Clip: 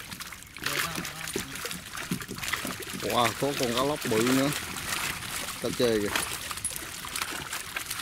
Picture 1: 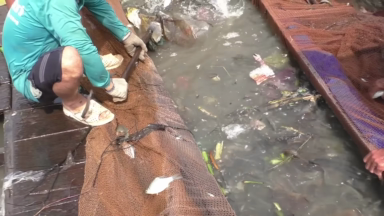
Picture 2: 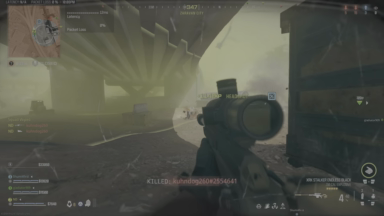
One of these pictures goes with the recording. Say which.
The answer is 1